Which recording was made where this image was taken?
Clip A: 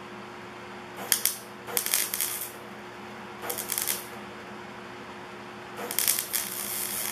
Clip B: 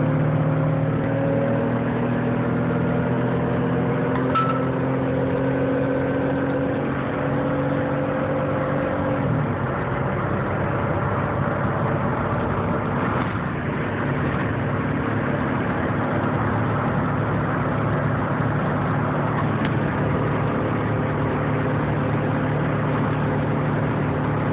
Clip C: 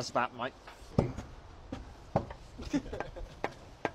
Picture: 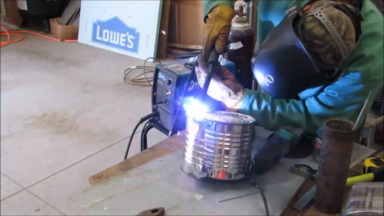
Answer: A